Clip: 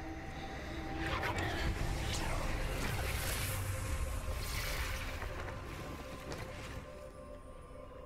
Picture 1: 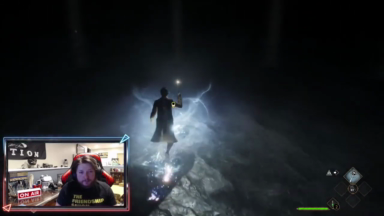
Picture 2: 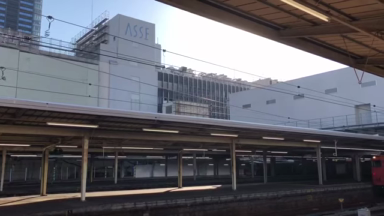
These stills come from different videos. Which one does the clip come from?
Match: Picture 1